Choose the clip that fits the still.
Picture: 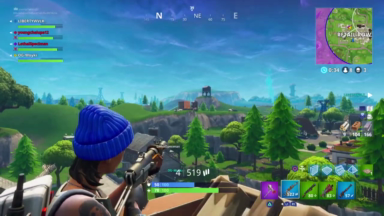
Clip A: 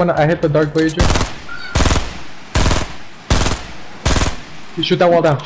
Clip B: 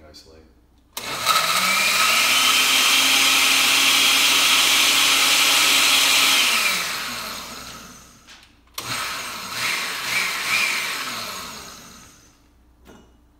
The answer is A